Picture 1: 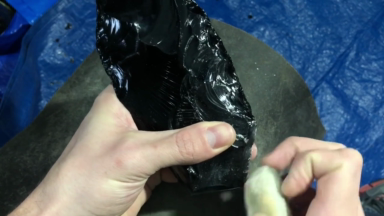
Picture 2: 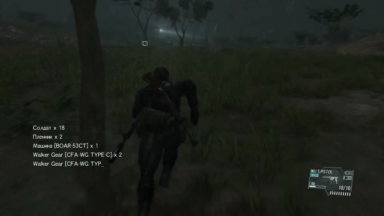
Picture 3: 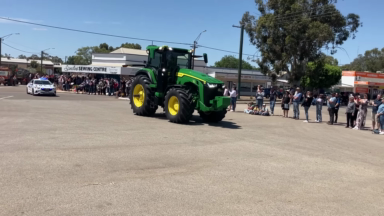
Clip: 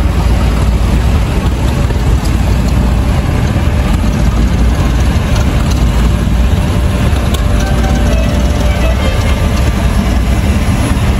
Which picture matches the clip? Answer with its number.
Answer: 3